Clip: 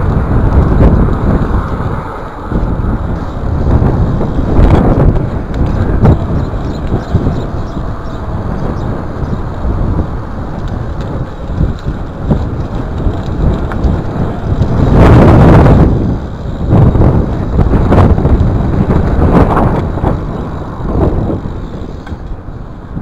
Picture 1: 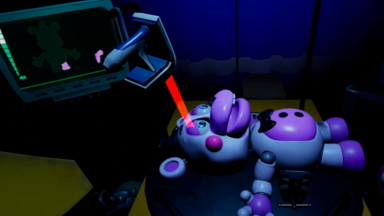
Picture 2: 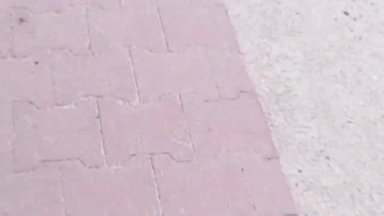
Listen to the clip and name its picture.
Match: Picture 2